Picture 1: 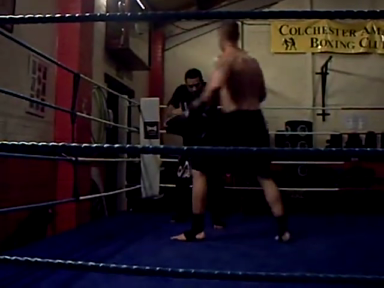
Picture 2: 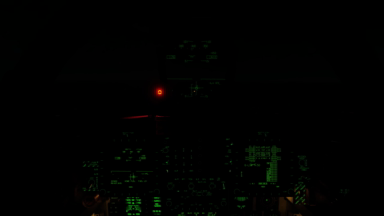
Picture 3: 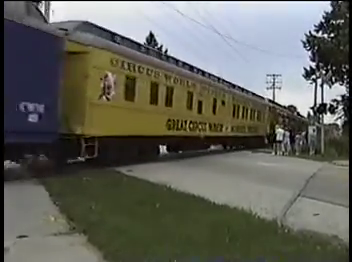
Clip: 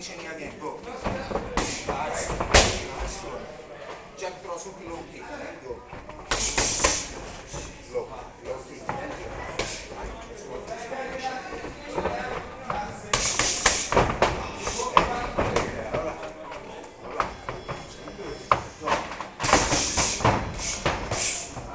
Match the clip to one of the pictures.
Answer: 1